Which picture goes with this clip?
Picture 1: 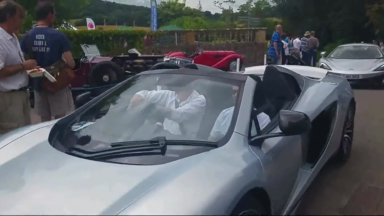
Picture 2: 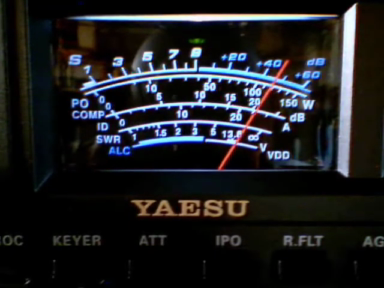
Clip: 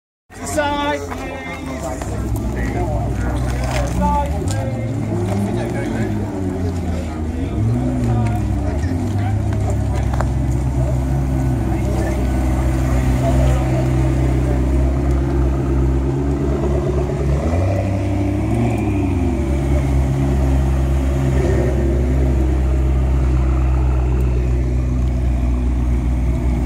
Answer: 1